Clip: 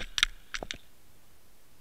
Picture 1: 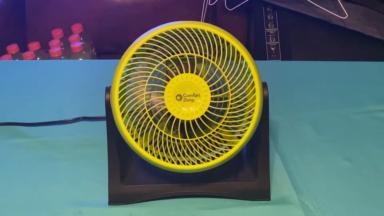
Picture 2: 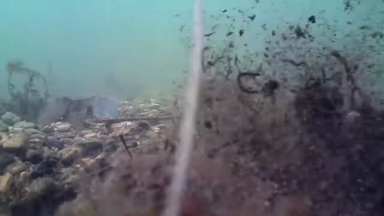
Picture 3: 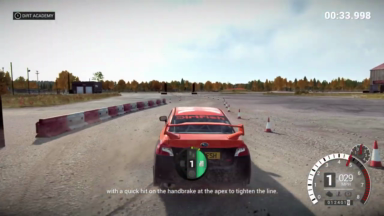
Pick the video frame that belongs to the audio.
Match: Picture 2